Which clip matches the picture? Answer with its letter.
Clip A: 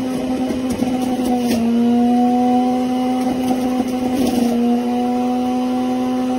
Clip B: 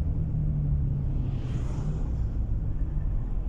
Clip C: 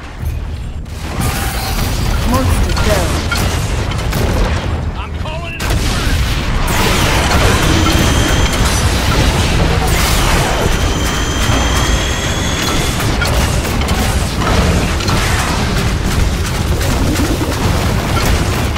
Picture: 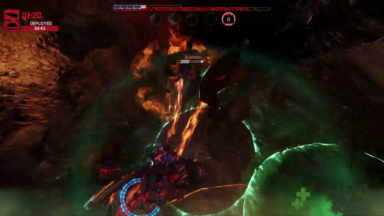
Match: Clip C